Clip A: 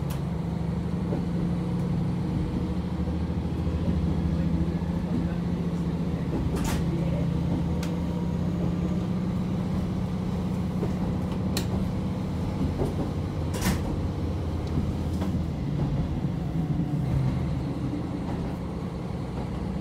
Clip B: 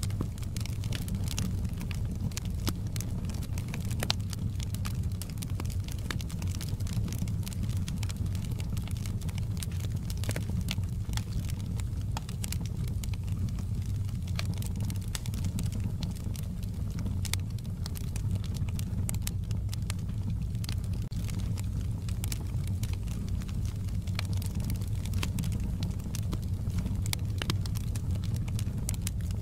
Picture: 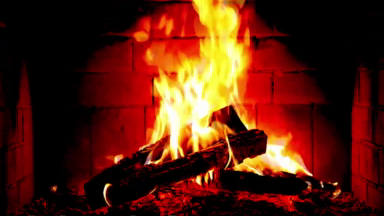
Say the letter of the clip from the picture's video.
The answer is B